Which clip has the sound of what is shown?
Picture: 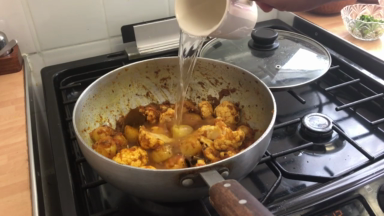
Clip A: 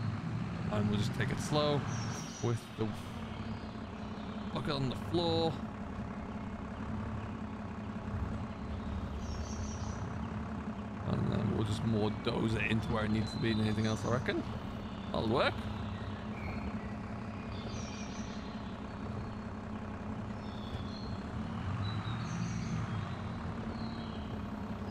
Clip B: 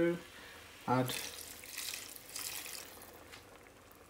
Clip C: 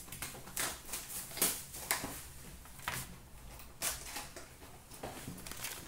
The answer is B